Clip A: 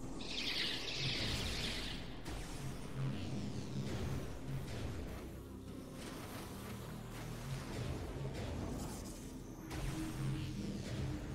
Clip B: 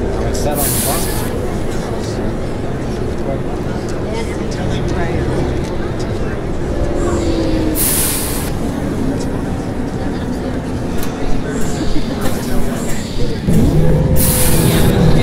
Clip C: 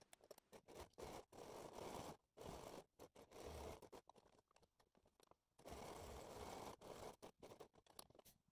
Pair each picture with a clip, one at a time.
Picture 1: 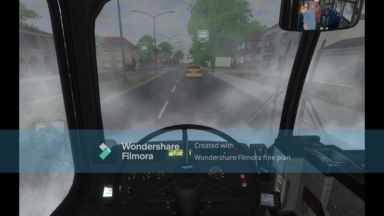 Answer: B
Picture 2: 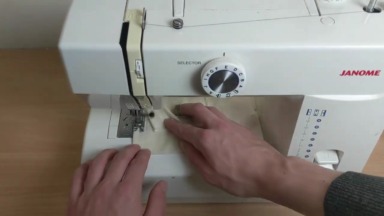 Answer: C